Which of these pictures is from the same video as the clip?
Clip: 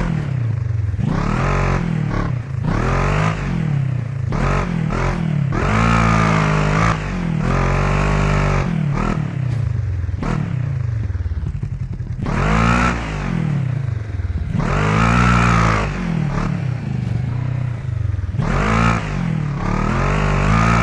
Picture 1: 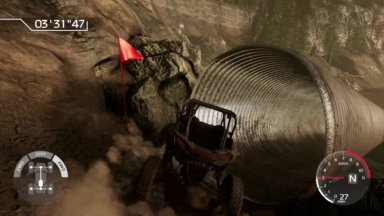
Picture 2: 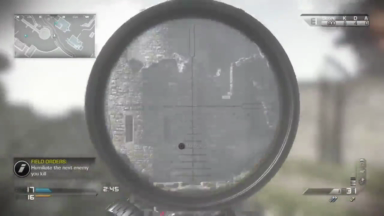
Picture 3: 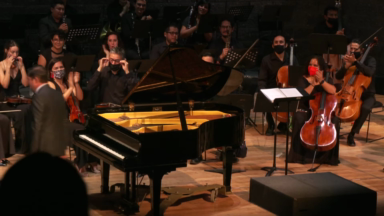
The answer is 1